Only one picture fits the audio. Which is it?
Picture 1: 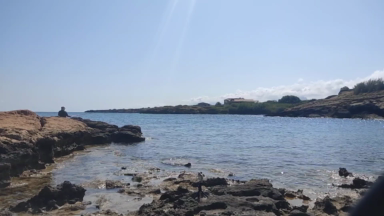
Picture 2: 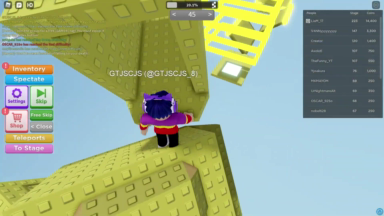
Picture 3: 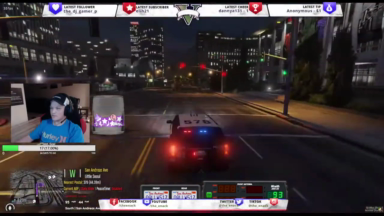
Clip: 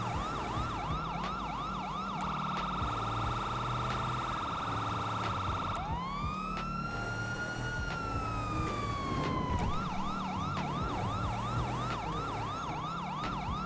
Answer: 3